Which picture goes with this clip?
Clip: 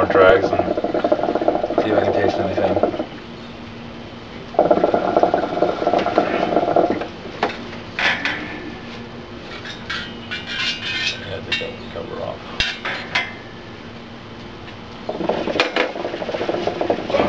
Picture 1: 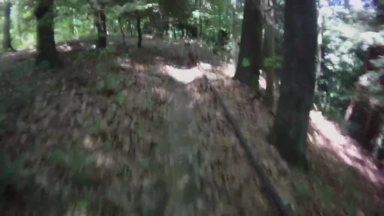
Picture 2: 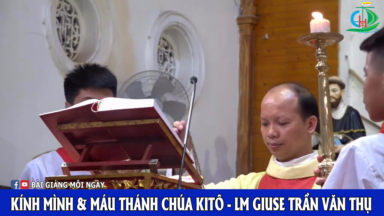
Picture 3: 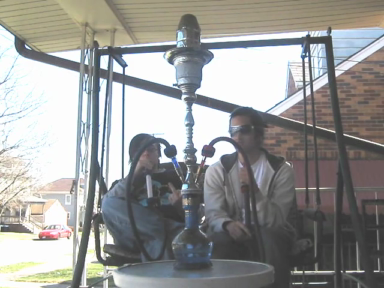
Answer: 3